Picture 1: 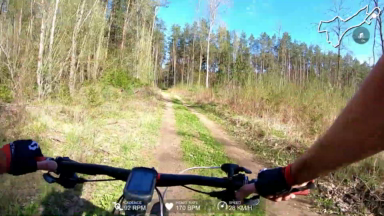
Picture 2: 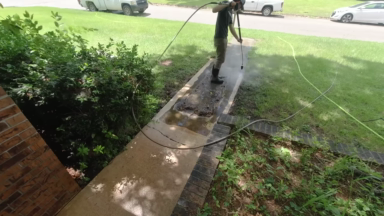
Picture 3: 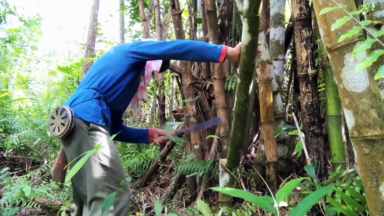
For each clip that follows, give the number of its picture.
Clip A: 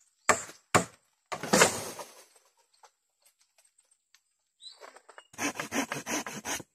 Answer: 3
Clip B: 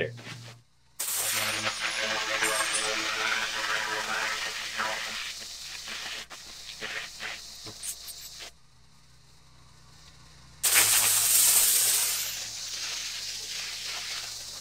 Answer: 2